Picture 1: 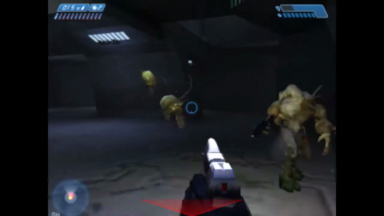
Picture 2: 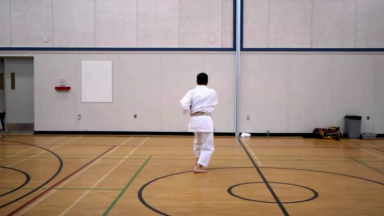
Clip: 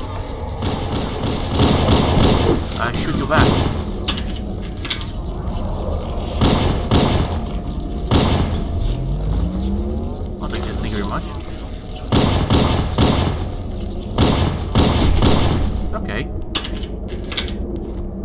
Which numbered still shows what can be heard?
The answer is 1